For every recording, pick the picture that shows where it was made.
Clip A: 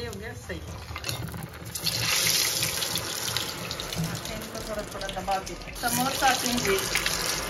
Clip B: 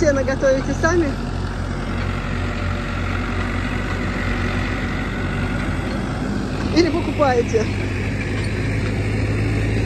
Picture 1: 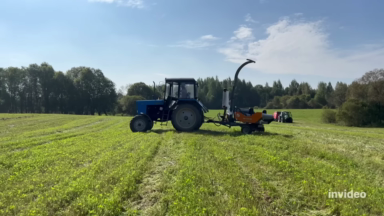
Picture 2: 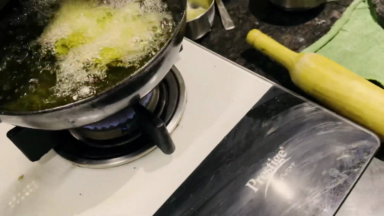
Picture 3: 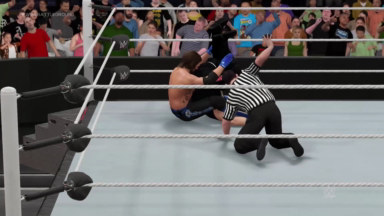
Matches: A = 2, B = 1